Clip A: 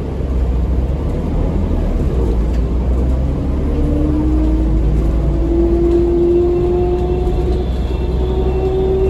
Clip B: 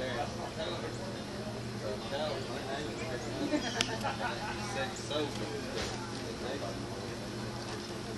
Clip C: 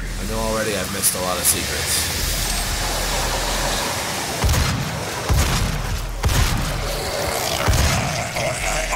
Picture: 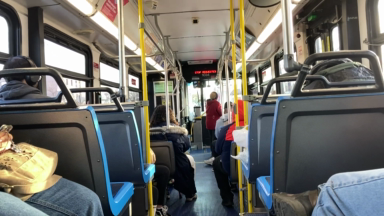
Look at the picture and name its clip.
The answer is A